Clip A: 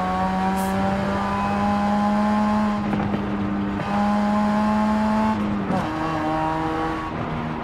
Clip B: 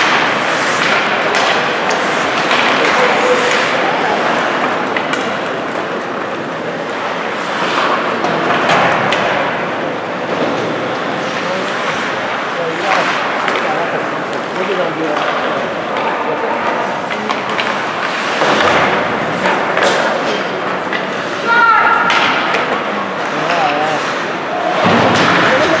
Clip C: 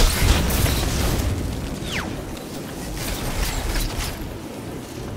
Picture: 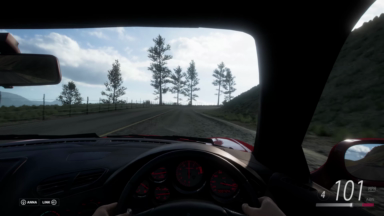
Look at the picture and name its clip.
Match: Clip A